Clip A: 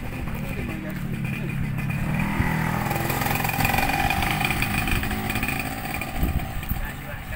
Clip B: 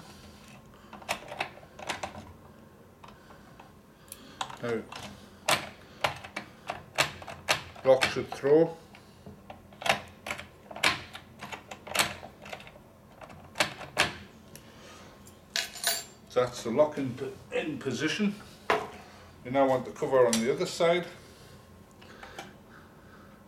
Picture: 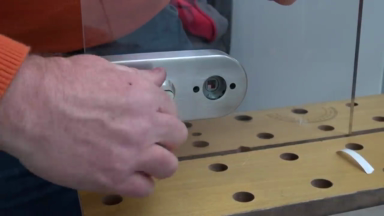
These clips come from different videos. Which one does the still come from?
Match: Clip B